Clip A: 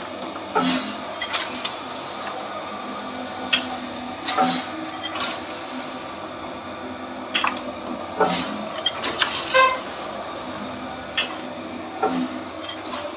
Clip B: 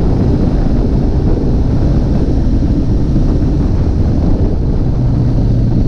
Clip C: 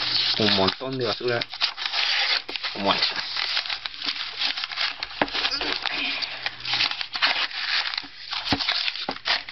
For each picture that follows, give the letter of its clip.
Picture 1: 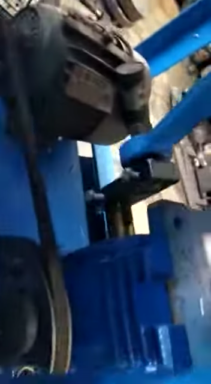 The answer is A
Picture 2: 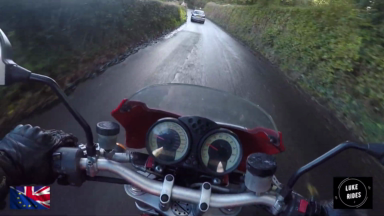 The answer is B